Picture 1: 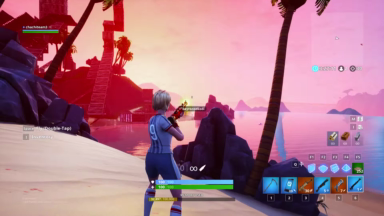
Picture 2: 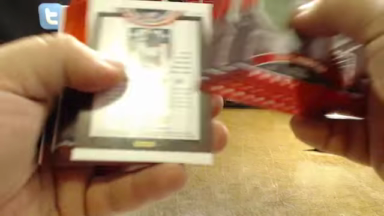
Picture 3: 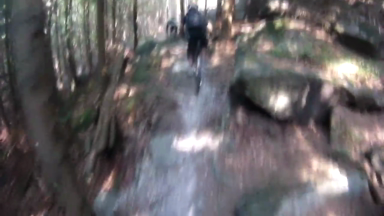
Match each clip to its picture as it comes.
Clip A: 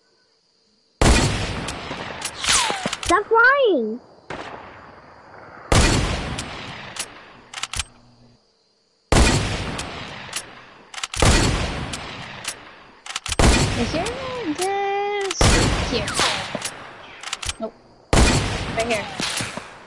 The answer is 1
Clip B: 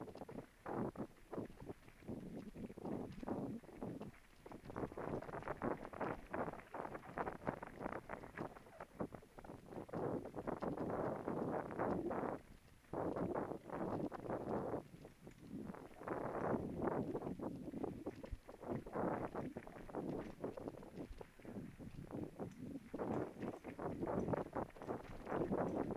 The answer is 3